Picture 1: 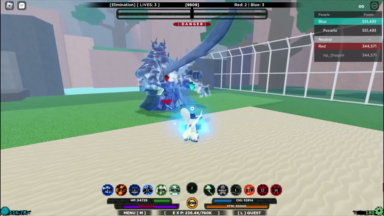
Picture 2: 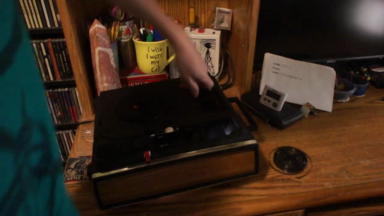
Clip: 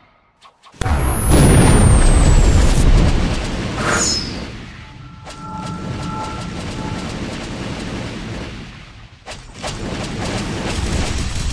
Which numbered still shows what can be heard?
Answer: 1